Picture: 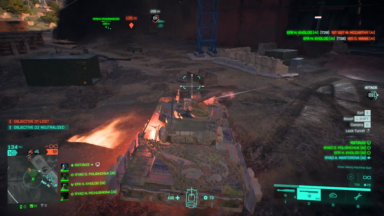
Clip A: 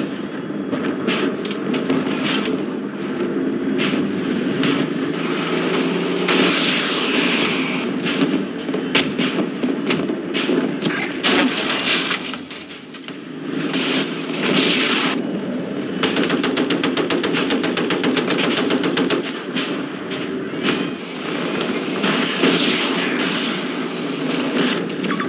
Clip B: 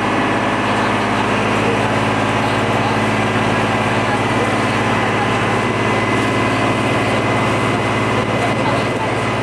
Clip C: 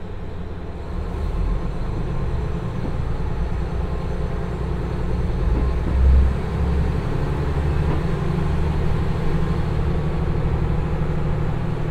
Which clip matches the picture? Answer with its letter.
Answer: A